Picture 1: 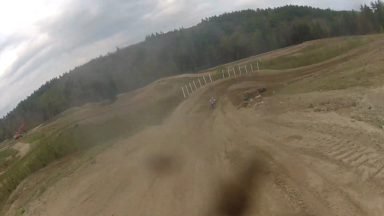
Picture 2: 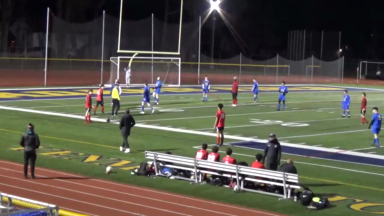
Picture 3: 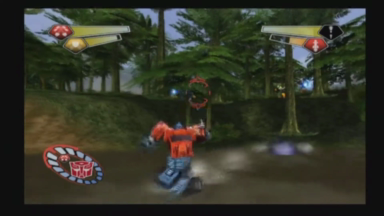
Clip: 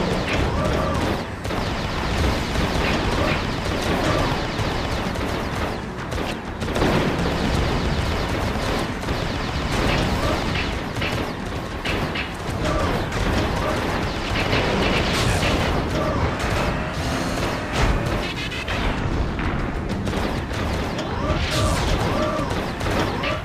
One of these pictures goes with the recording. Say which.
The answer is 3